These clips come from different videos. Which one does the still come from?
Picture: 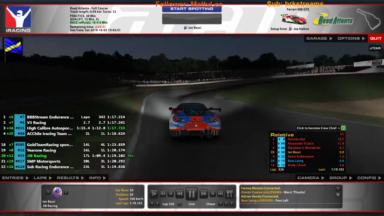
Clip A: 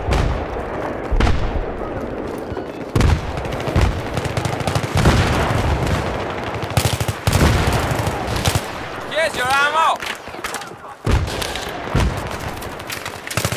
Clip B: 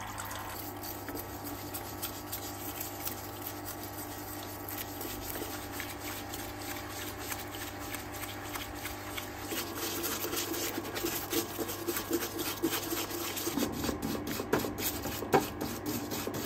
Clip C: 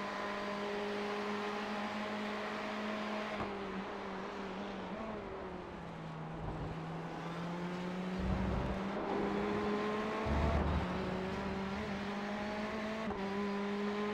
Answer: C